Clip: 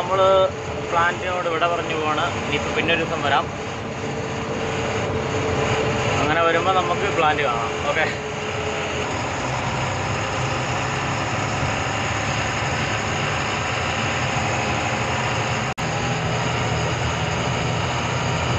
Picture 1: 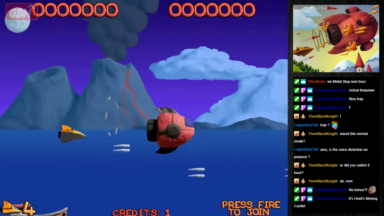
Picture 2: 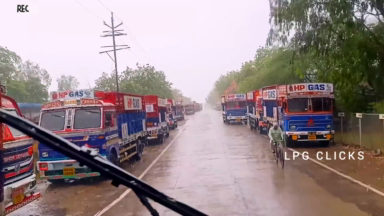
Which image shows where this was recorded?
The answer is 2